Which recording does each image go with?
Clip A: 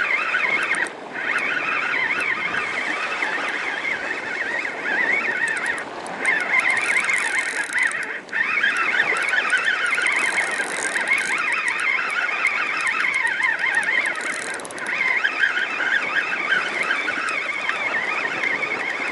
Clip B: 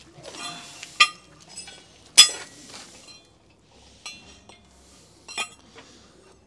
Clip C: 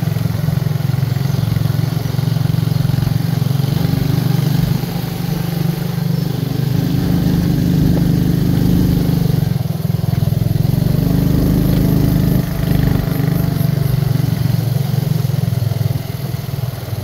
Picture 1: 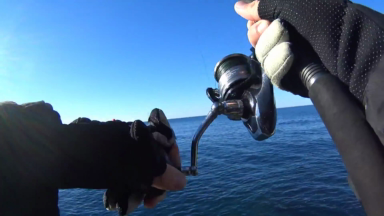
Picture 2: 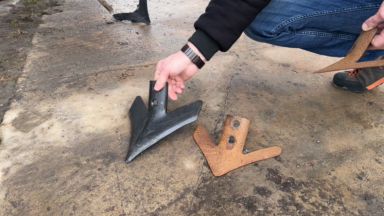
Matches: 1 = A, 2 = B